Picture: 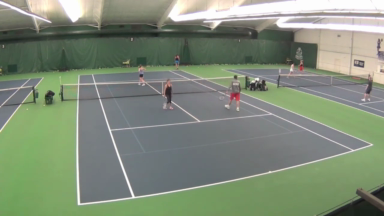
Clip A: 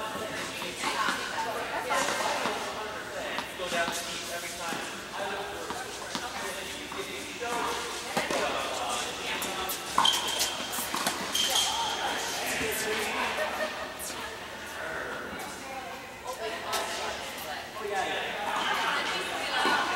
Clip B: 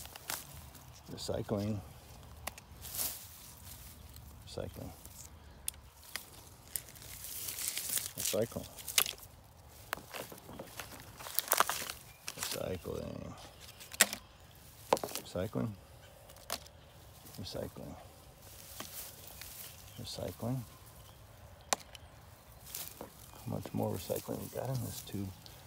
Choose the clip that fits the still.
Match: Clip A